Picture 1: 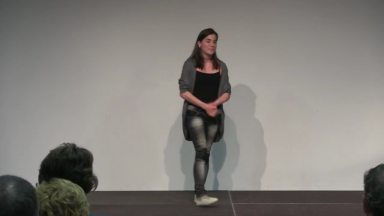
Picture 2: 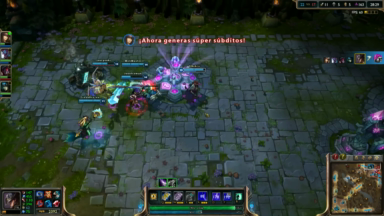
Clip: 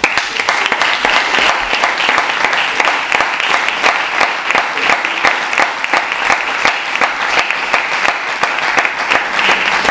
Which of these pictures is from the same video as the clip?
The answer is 1